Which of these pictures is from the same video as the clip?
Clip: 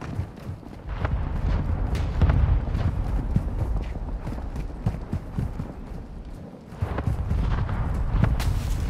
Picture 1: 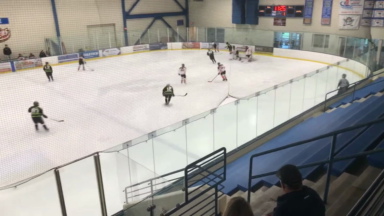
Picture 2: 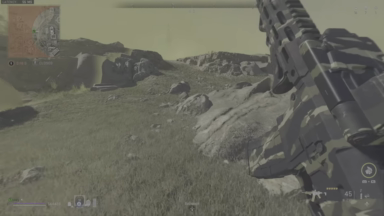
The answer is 2